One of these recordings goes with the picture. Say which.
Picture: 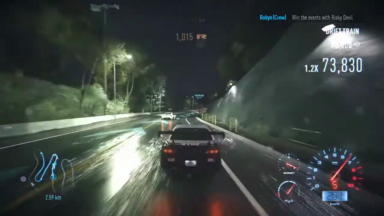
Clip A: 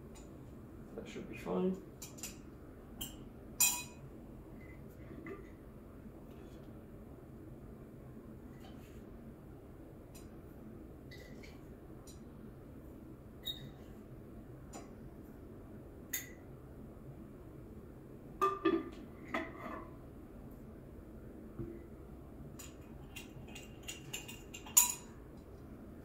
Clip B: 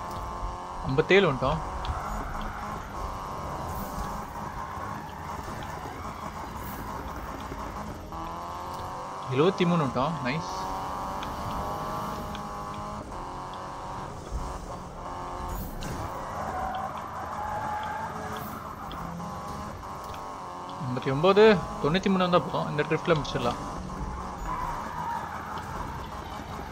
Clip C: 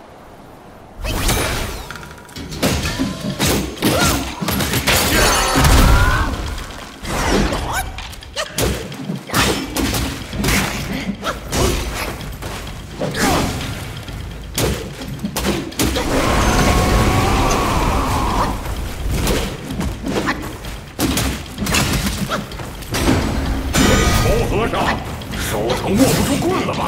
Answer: B